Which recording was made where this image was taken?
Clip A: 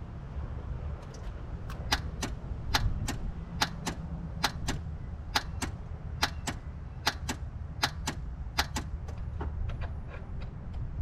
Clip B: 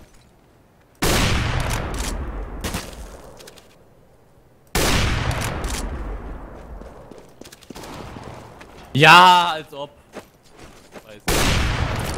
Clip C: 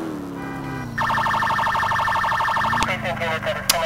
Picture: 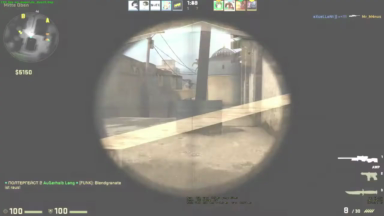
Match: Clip B